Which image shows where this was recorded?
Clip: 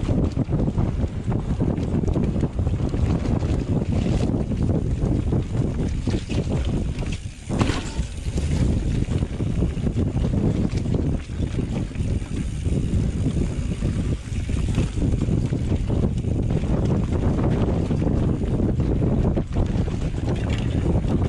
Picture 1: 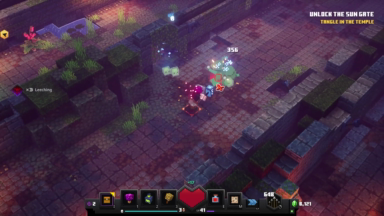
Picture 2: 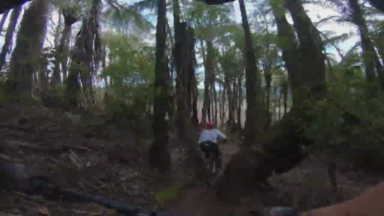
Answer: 2